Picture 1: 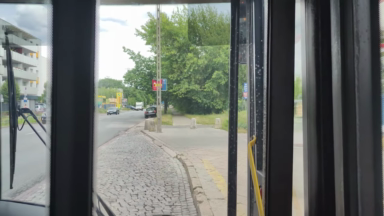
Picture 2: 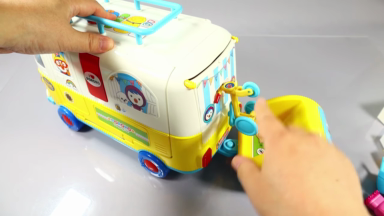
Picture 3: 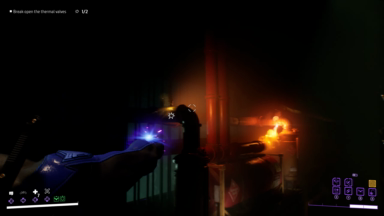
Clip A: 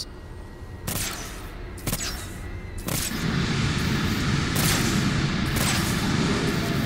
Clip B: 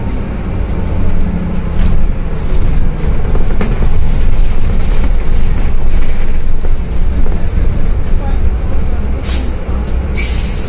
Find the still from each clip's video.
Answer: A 3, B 1